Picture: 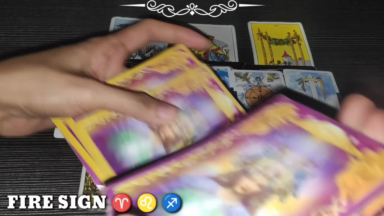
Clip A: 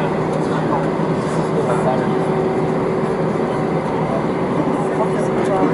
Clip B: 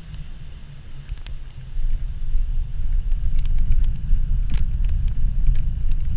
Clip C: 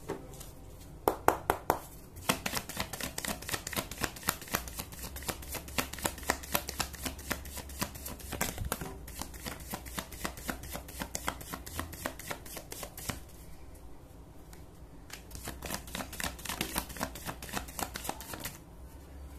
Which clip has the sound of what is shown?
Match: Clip C